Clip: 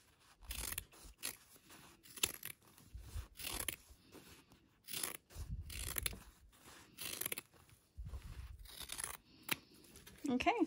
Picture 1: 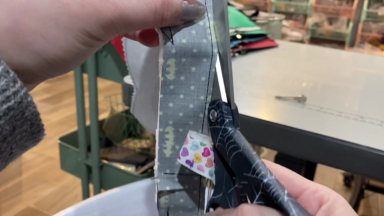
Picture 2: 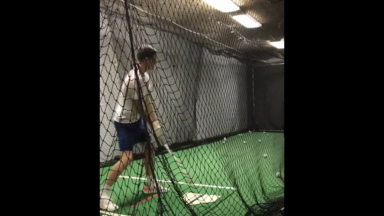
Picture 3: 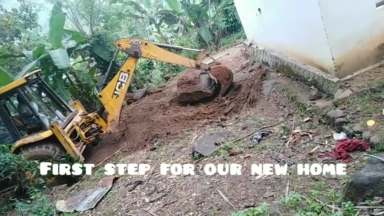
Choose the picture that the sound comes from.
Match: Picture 1